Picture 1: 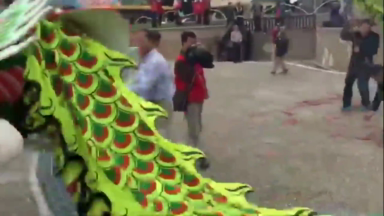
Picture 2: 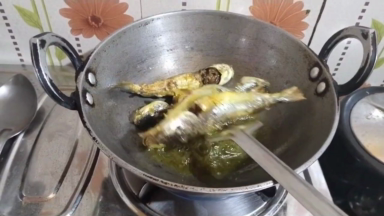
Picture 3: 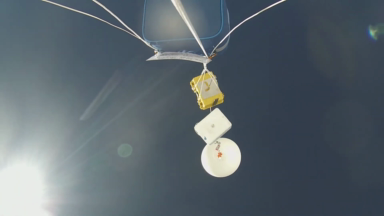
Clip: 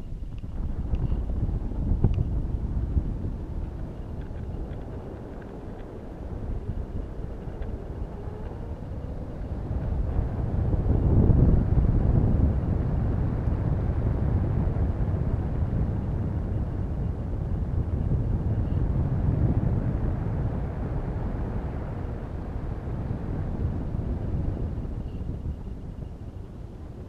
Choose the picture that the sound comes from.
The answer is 3